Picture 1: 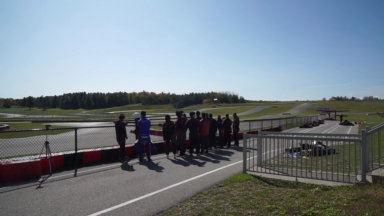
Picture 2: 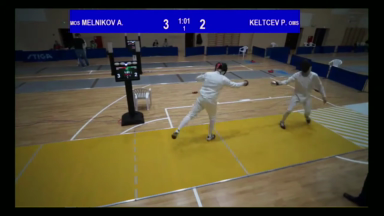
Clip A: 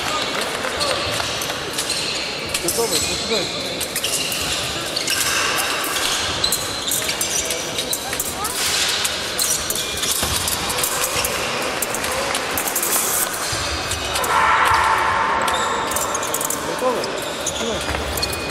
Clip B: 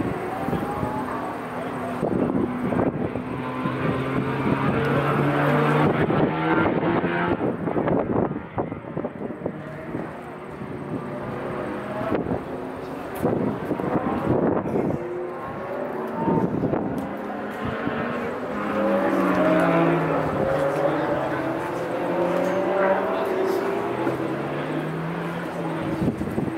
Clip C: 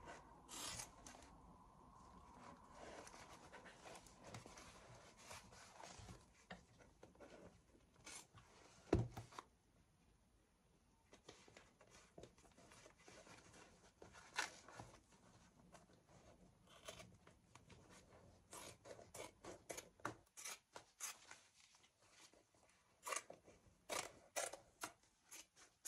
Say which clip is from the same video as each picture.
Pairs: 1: B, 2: A